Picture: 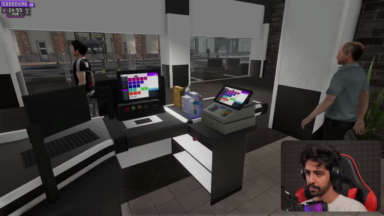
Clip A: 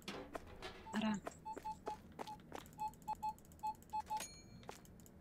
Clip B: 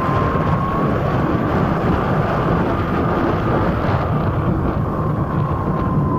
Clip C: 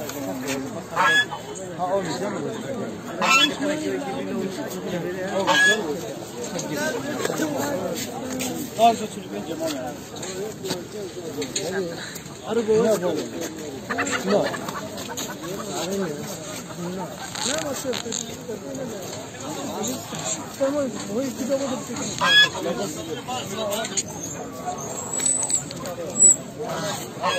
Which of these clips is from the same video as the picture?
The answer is A